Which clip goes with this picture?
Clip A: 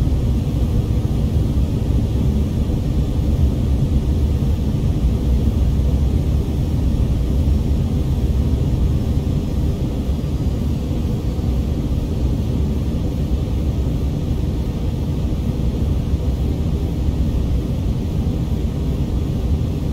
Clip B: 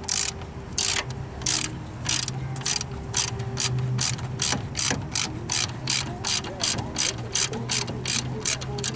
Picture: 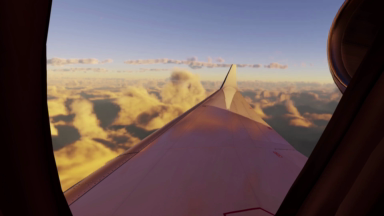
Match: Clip A